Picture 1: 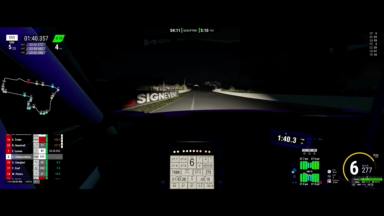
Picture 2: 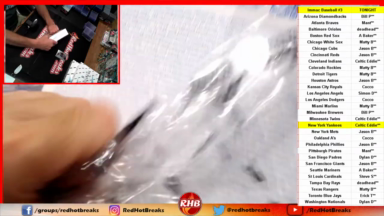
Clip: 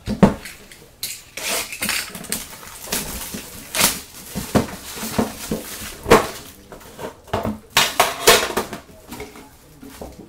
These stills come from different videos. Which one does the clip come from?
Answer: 2